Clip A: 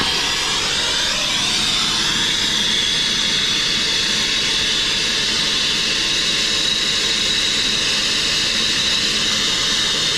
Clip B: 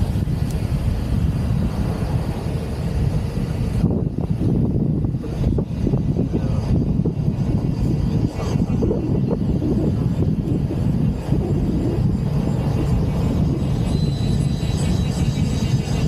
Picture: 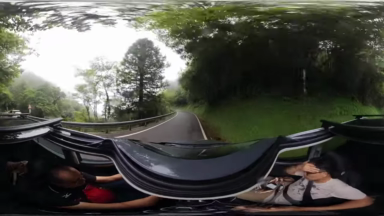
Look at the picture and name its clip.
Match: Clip B